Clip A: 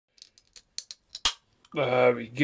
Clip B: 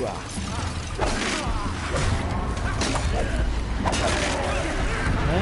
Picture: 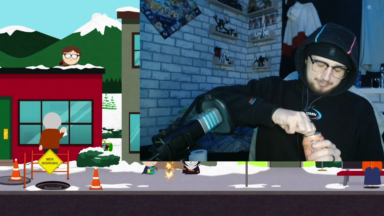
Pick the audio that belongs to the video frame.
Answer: A